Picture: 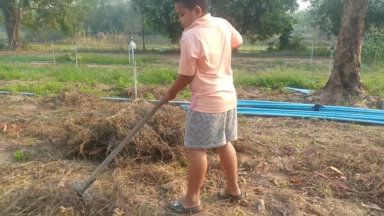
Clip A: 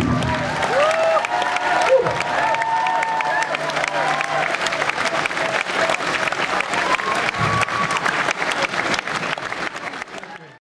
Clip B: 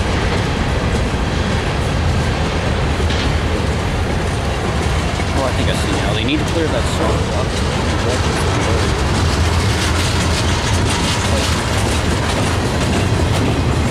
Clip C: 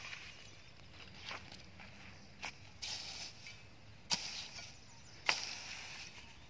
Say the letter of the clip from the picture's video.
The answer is C